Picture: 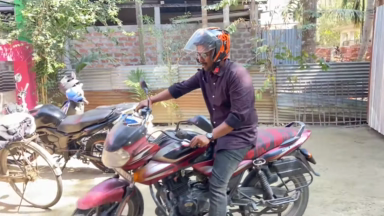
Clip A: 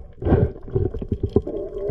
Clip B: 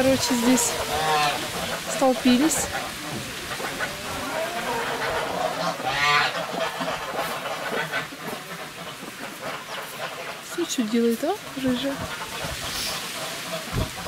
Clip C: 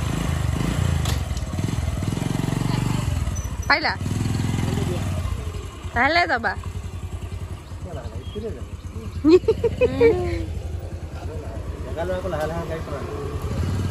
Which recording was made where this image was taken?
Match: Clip C